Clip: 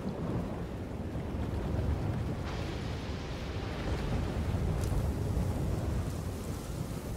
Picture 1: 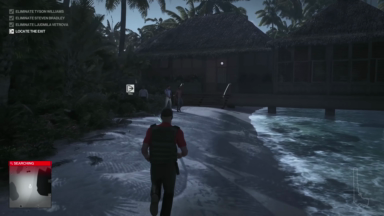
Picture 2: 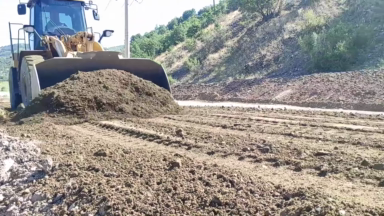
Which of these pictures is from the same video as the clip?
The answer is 1